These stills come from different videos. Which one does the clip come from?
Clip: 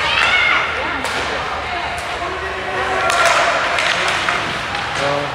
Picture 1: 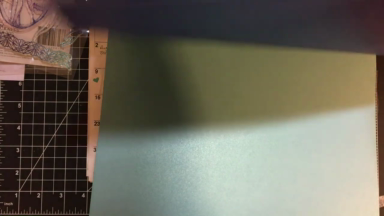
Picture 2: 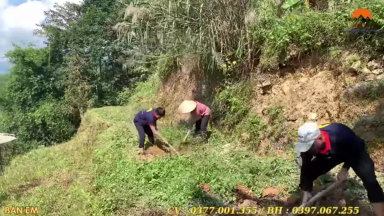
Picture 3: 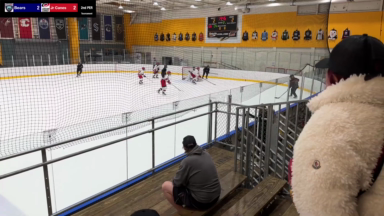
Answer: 3